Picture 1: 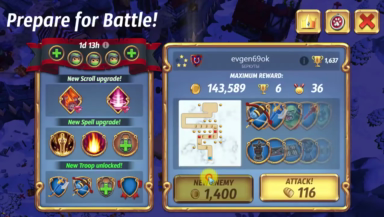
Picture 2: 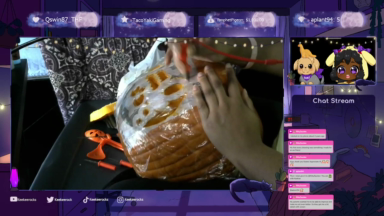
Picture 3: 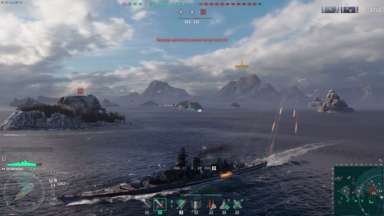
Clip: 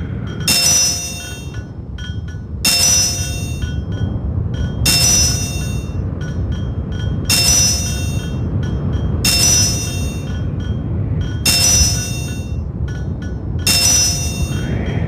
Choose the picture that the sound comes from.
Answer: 1